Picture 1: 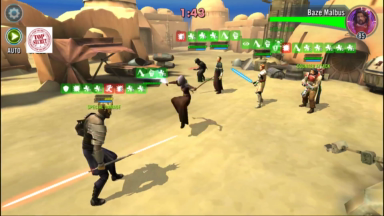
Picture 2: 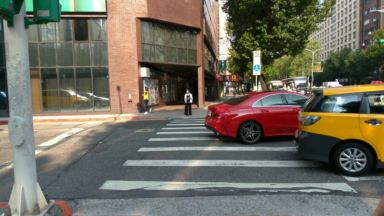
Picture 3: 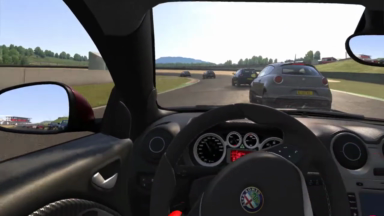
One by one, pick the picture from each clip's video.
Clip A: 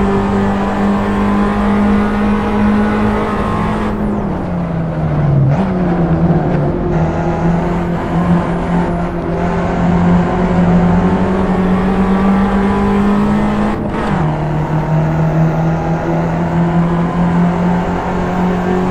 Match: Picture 3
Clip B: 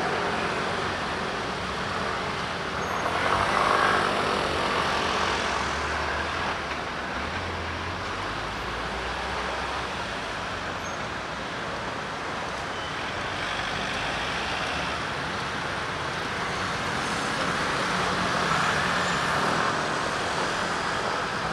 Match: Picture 2